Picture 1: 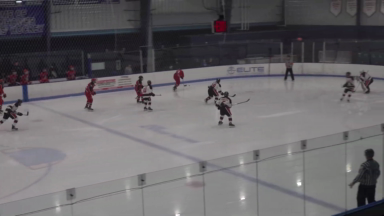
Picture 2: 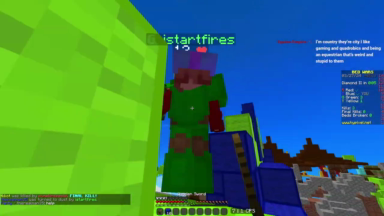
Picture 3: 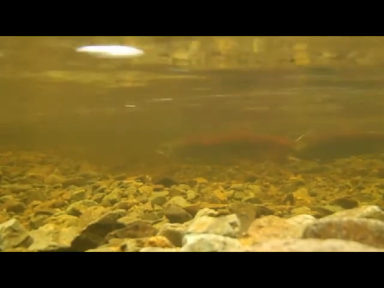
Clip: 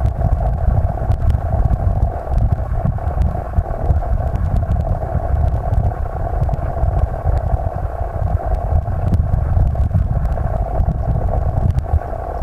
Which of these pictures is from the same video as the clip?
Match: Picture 3